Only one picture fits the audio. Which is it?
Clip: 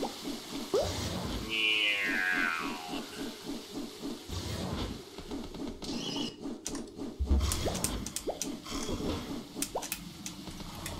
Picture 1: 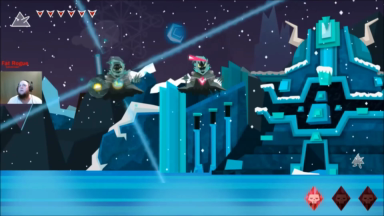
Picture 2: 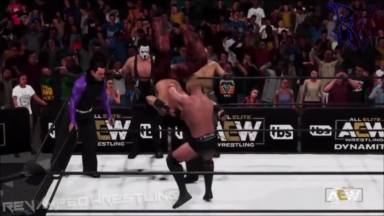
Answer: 1